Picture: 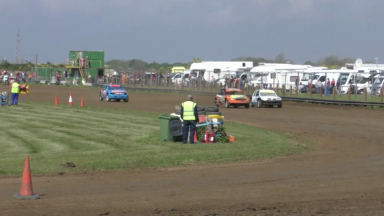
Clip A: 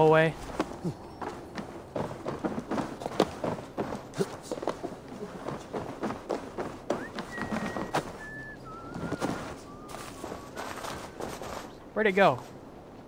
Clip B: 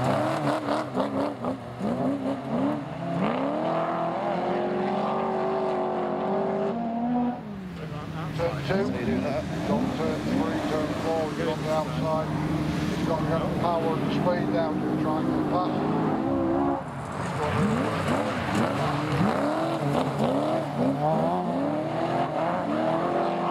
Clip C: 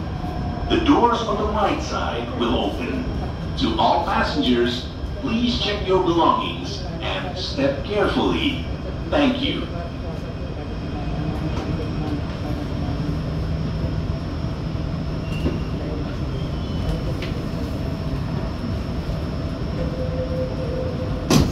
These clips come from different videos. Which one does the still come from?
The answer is B